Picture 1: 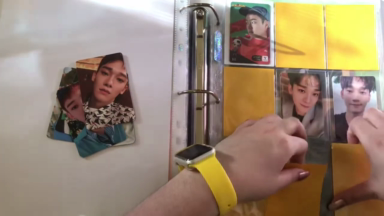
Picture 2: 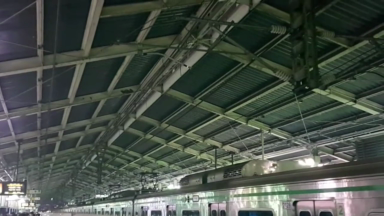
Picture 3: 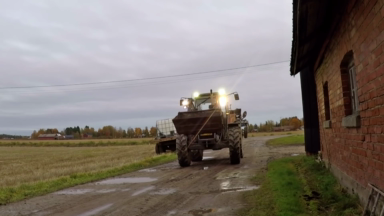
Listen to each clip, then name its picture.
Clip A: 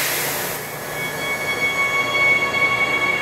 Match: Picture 2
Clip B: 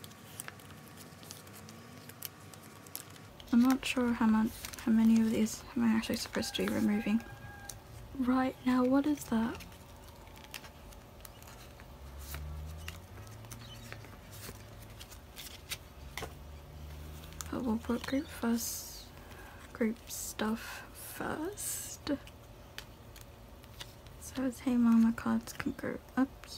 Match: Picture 1